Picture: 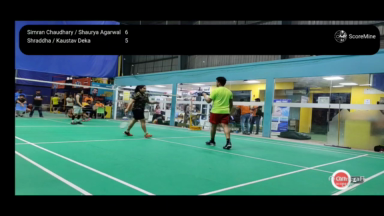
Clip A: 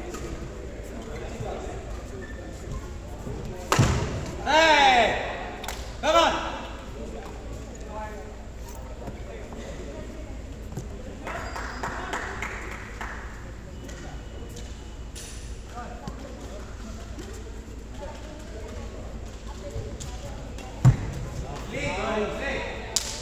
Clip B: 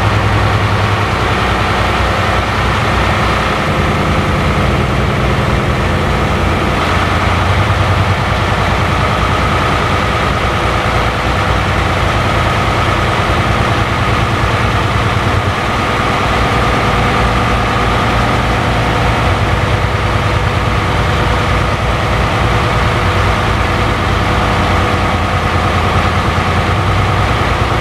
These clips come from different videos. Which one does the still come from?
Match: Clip A